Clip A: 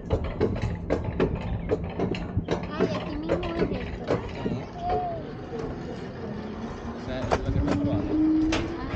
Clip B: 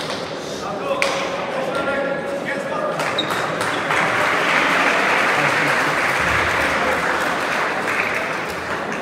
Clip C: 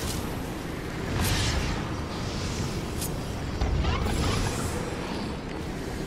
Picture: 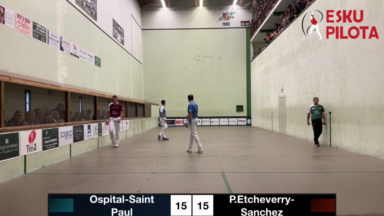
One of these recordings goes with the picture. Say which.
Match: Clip B